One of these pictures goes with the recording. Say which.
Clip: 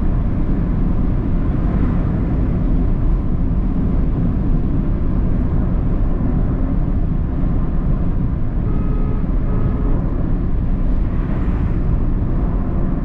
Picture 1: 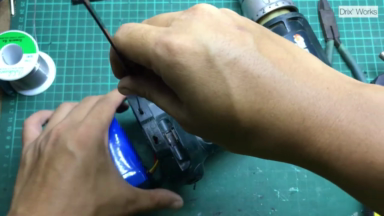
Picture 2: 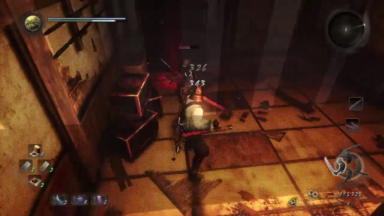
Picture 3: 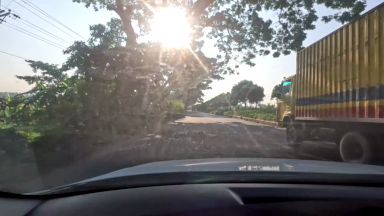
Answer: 3